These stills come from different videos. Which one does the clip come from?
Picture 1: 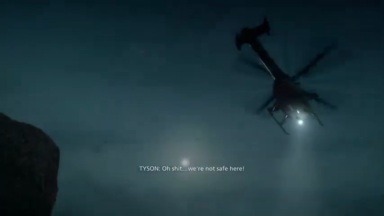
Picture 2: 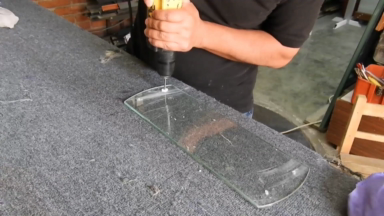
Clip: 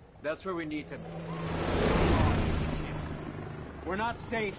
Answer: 1